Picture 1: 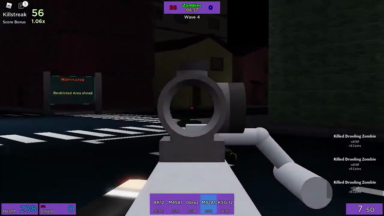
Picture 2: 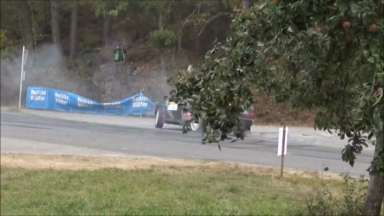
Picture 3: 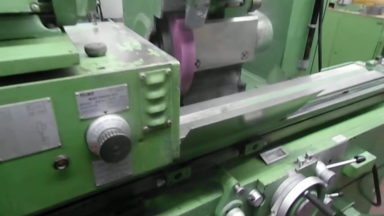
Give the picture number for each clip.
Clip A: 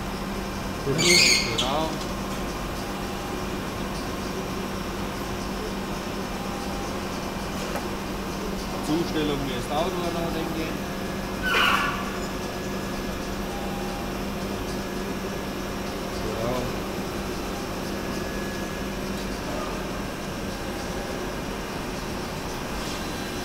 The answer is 3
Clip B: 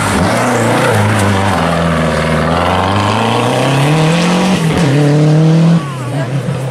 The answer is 2